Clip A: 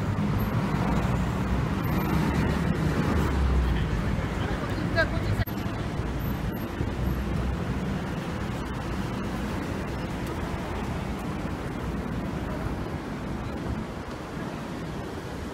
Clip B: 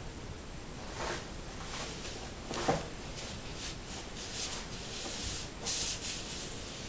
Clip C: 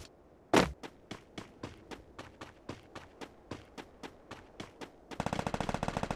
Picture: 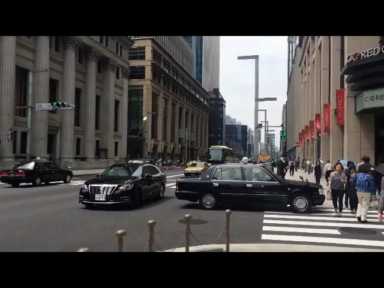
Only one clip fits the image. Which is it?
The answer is A